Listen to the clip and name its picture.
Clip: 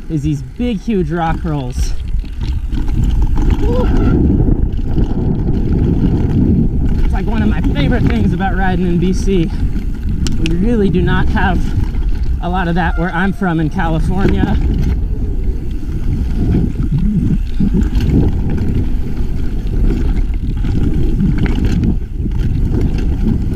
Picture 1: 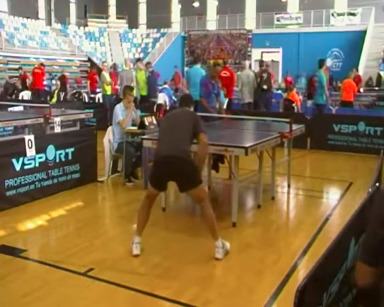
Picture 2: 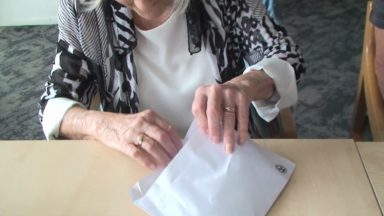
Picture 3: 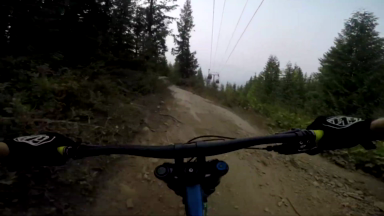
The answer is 3